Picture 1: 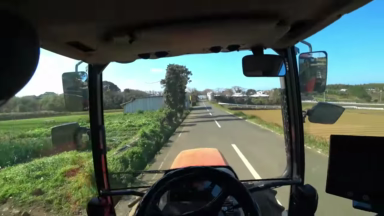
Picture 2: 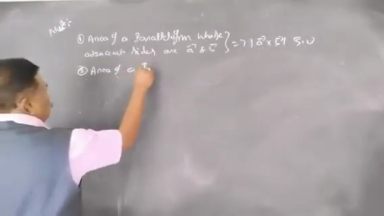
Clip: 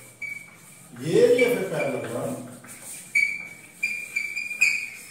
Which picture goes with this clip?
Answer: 2